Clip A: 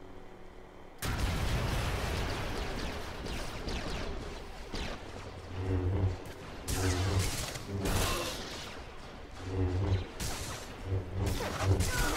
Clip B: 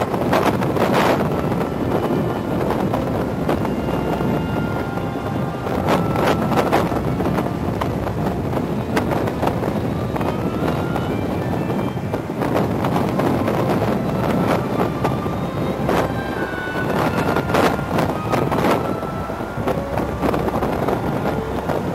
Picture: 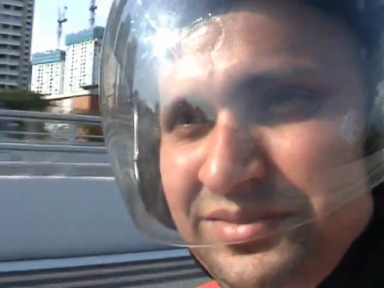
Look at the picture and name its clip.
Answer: B